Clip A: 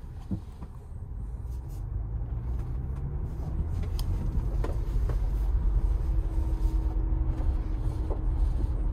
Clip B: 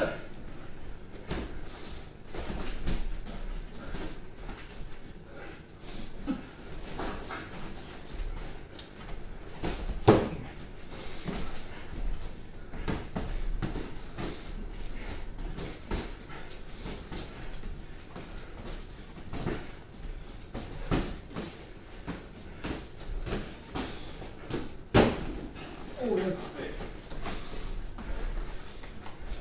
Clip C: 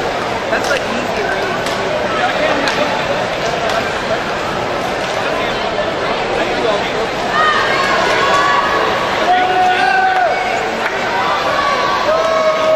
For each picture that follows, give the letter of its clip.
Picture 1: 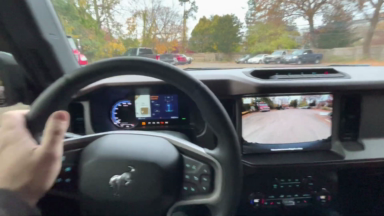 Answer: A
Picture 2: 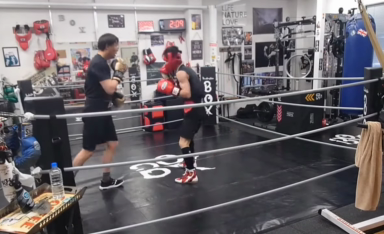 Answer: B